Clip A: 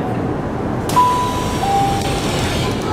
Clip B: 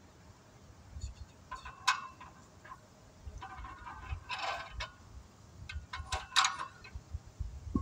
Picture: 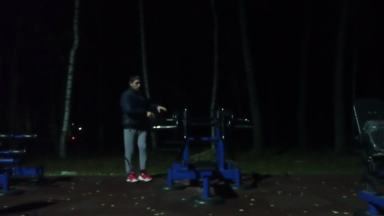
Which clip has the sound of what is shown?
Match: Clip B